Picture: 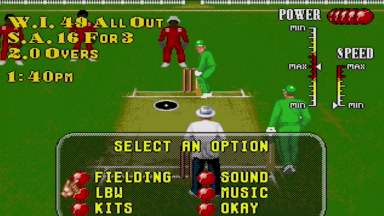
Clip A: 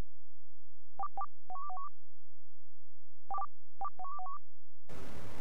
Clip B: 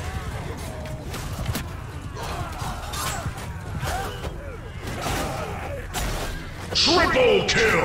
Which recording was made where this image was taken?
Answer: A